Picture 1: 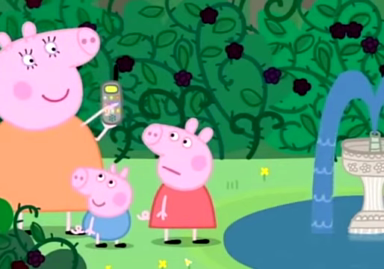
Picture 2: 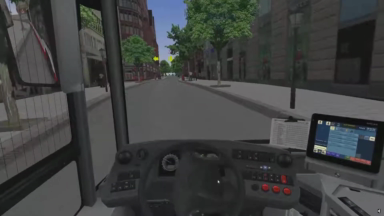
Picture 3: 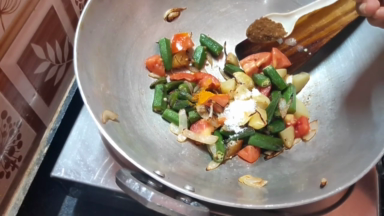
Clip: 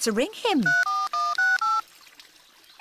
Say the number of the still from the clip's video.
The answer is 1